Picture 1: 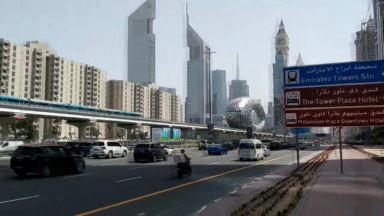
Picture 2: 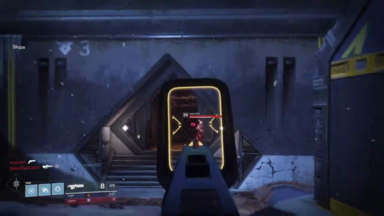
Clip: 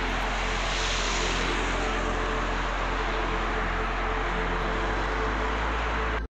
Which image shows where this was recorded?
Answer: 1